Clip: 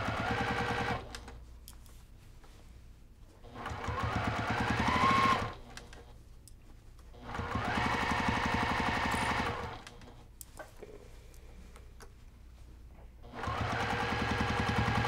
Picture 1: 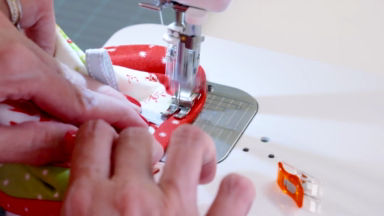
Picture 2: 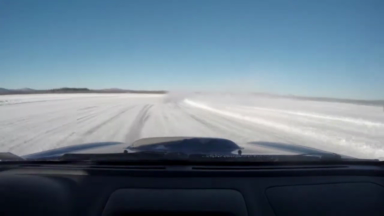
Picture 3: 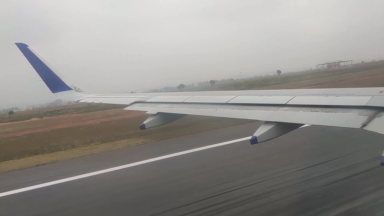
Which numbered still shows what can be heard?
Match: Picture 1